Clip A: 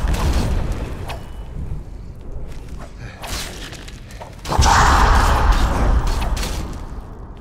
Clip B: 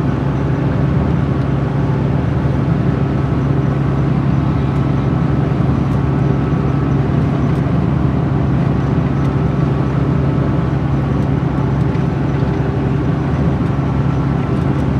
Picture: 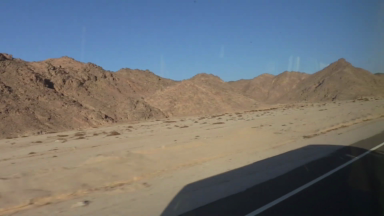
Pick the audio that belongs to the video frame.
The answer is B